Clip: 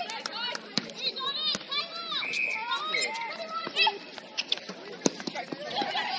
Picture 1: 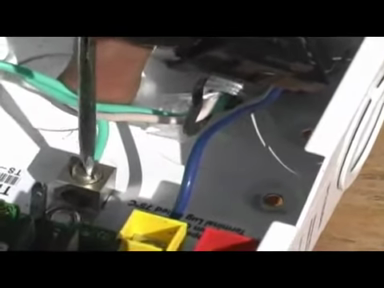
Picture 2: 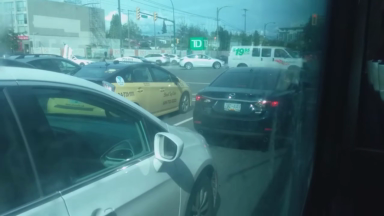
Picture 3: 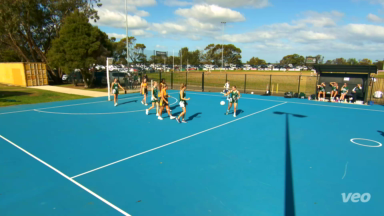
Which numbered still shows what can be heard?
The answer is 3